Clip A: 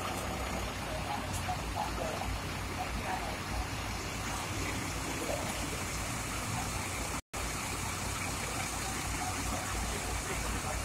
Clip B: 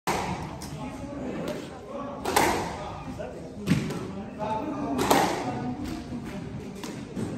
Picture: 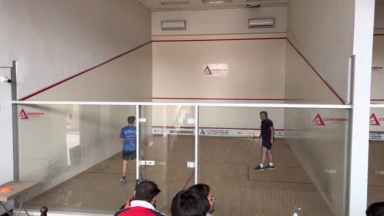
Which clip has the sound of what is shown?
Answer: B